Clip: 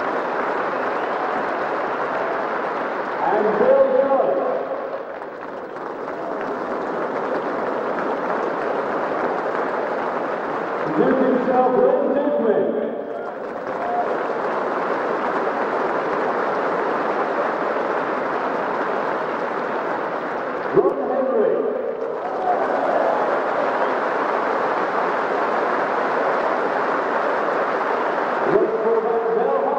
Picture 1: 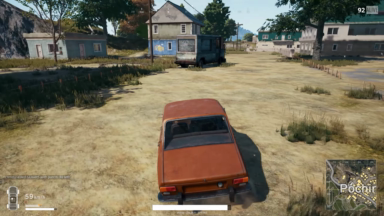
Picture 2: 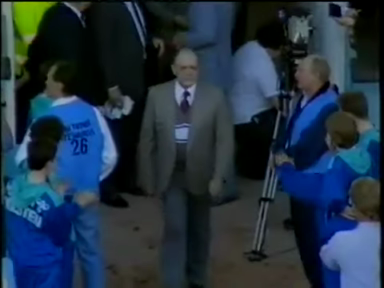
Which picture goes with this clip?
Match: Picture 2